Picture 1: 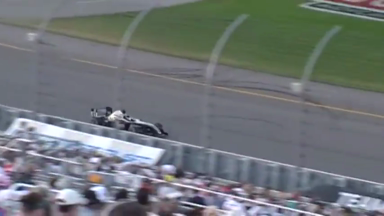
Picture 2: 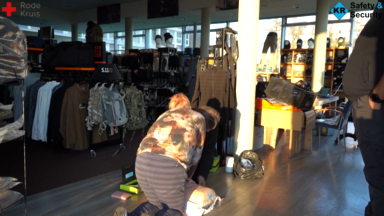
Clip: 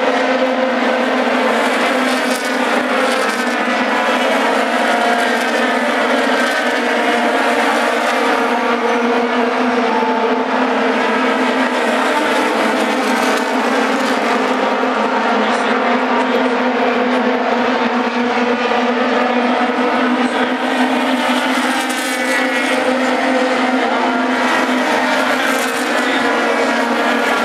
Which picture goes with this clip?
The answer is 1